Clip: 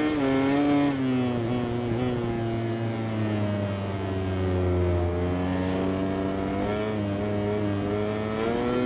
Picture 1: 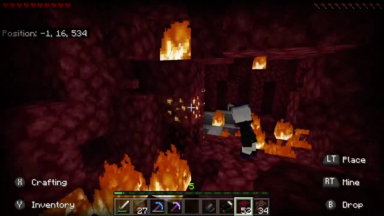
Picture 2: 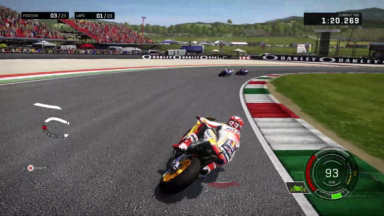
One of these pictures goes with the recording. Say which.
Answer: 2